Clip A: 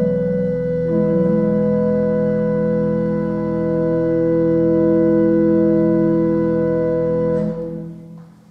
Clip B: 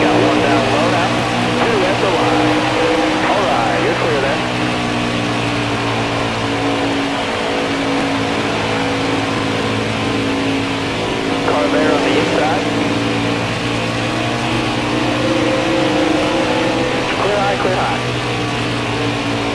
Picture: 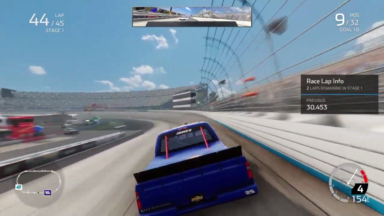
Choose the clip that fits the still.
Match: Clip B